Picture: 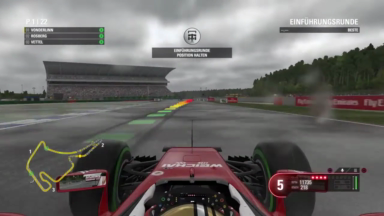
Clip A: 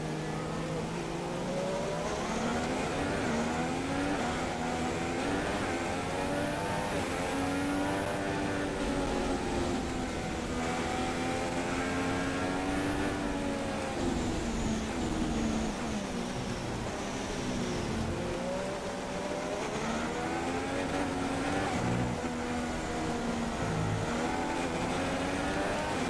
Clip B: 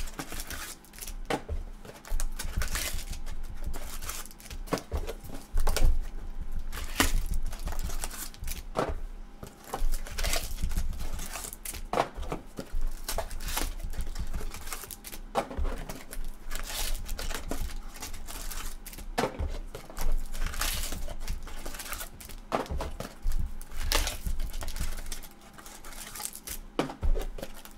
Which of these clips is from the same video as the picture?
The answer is A